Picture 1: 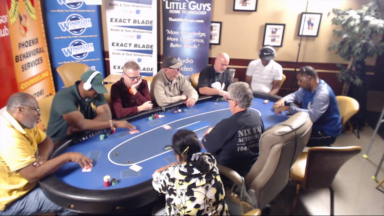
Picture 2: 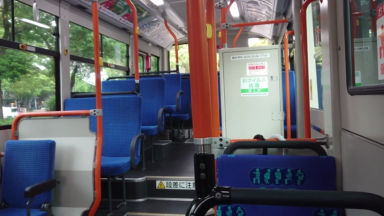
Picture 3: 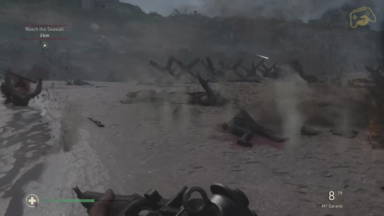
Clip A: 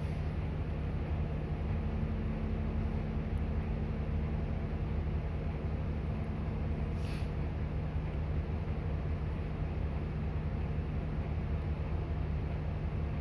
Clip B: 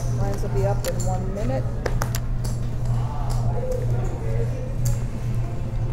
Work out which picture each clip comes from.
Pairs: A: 2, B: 1